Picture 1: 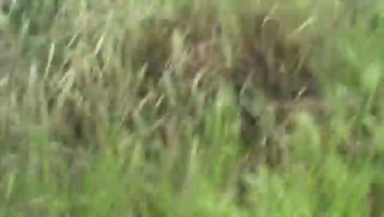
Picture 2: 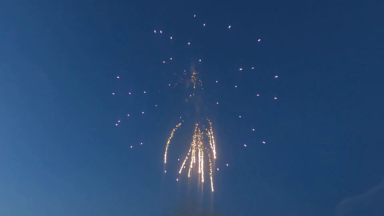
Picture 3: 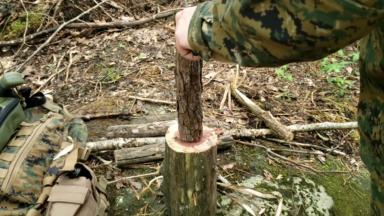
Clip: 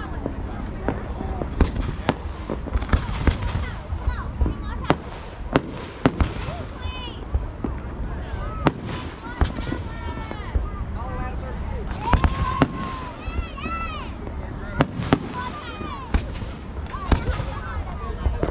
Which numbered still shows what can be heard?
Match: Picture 2